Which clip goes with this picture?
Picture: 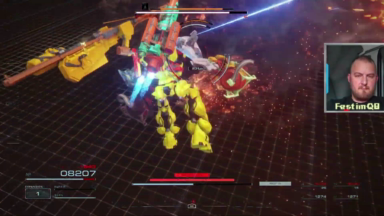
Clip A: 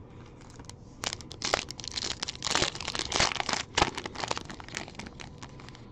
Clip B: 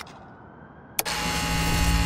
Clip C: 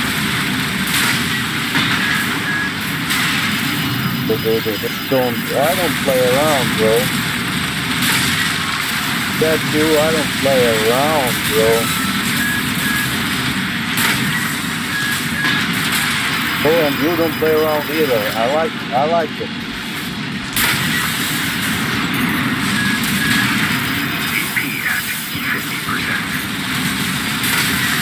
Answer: C